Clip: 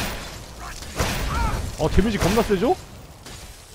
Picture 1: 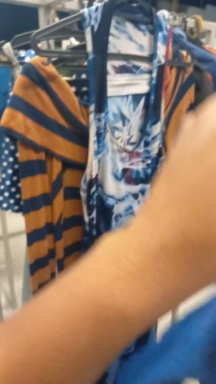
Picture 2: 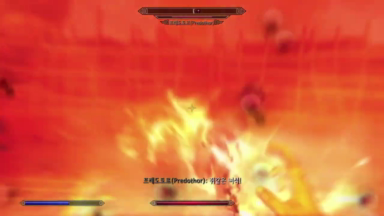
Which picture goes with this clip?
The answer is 2